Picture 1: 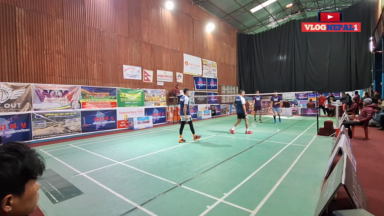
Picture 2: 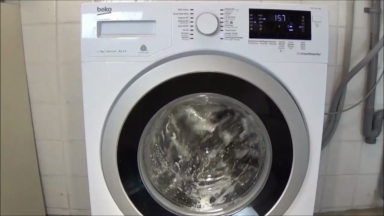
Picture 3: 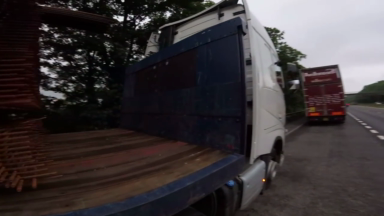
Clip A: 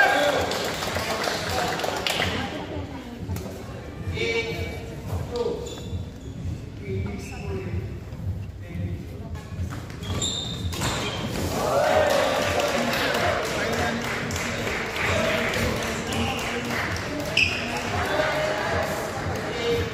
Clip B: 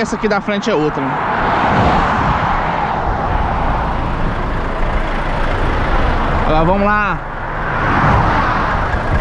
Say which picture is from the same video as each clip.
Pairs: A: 1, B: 3